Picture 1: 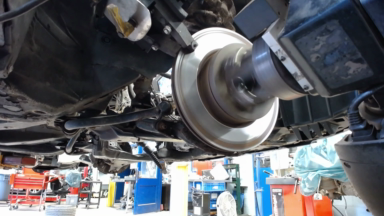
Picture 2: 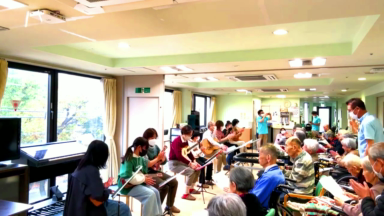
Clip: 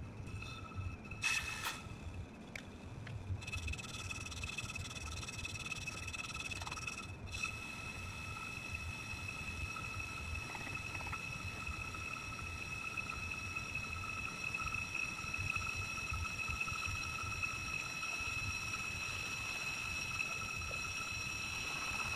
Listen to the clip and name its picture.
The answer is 1